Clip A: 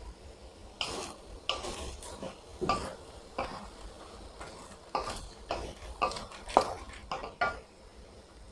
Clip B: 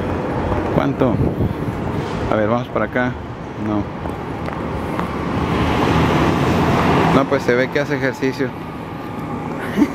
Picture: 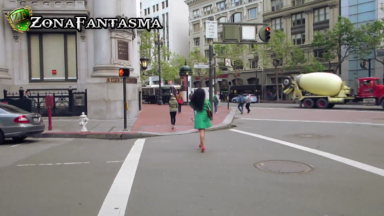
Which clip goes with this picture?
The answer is B